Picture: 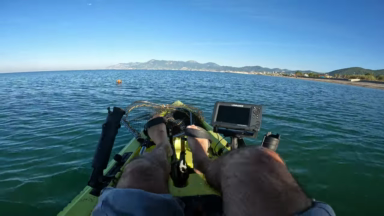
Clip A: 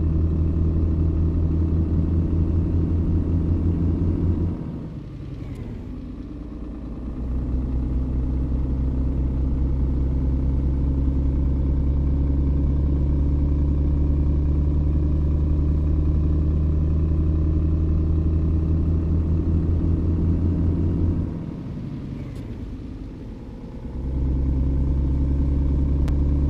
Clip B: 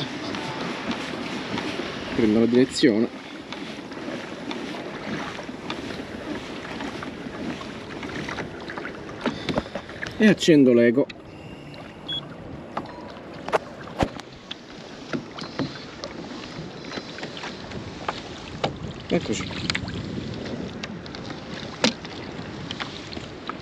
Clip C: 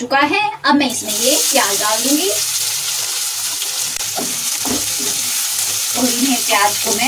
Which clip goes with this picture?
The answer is B